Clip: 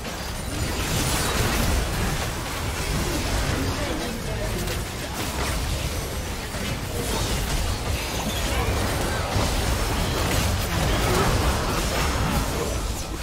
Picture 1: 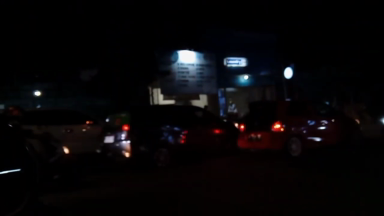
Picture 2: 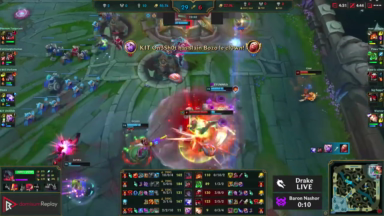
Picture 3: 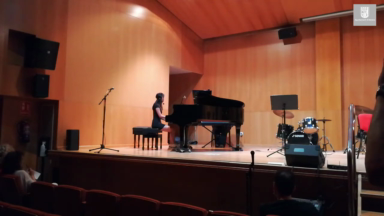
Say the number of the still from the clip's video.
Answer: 2